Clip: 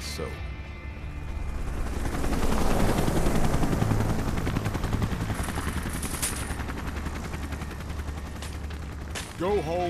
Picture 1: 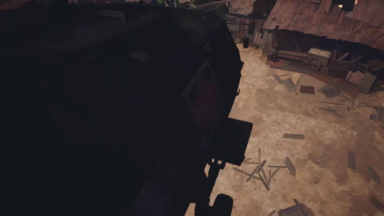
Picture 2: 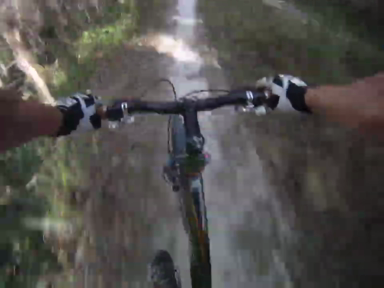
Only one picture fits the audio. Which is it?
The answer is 1